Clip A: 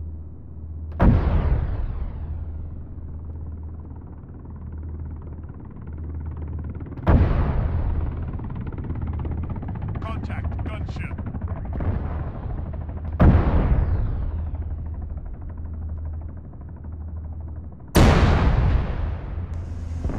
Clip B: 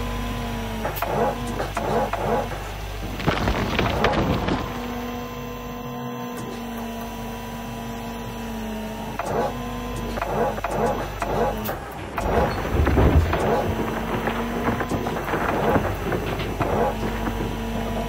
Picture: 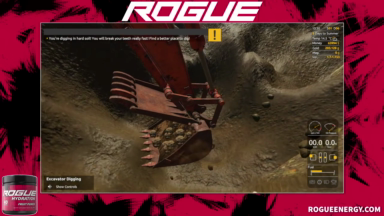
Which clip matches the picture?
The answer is B